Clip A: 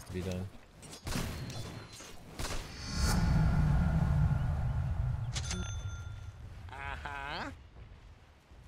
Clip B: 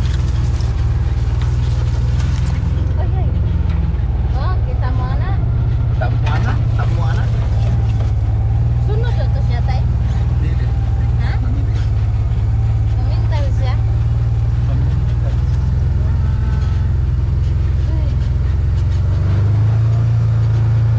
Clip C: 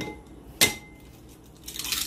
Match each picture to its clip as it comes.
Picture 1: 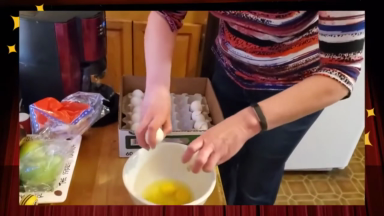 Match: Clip C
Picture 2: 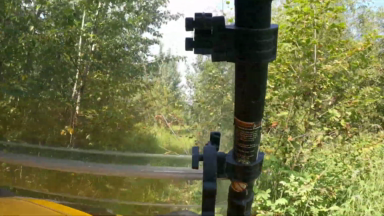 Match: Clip B